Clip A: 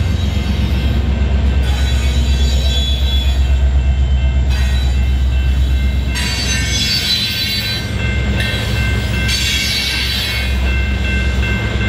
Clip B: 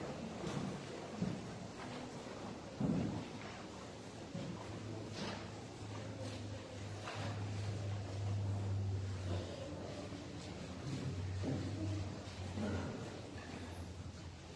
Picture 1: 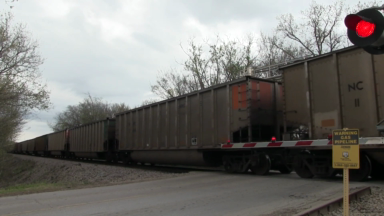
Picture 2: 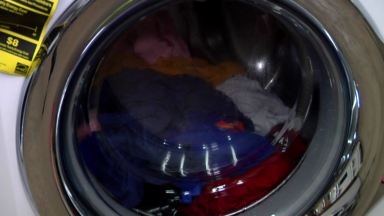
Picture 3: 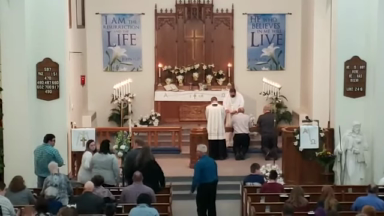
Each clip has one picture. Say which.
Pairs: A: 1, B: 3